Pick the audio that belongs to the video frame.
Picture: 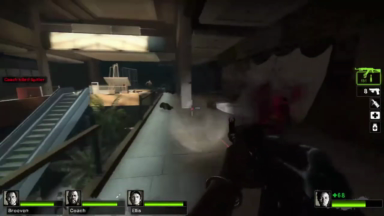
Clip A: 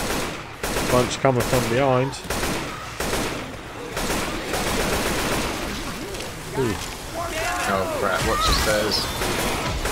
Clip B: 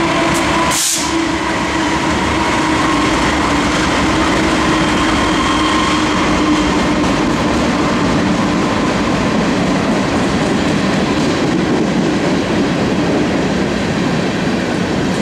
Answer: A